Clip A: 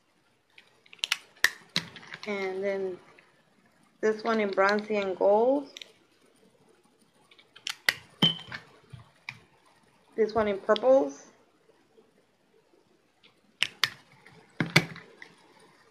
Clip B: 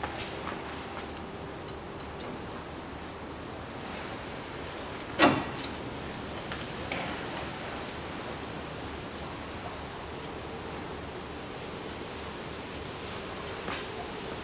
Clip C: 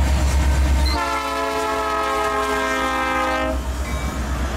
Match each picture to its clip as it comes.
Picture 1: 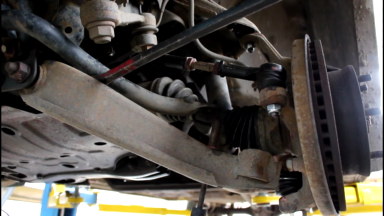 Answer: B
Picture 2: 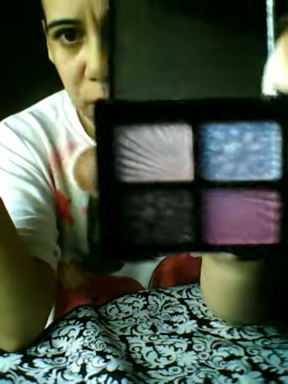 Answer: A